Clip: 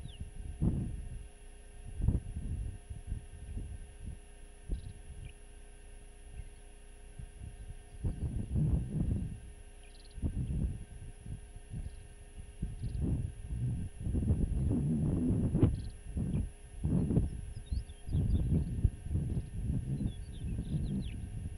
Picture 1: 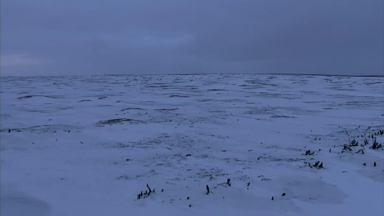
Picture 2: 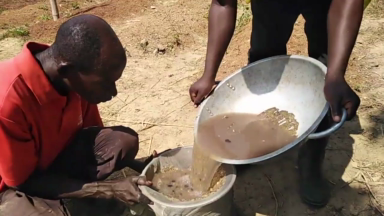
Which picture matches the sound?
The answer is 1